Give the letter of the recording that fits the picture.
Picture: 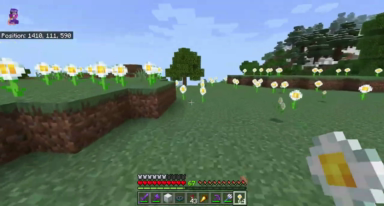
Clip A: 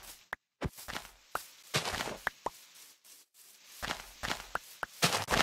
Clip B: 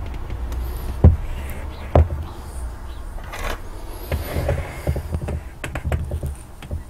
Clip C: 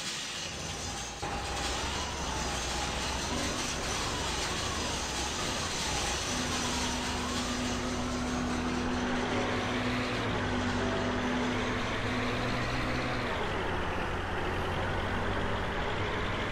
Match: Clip A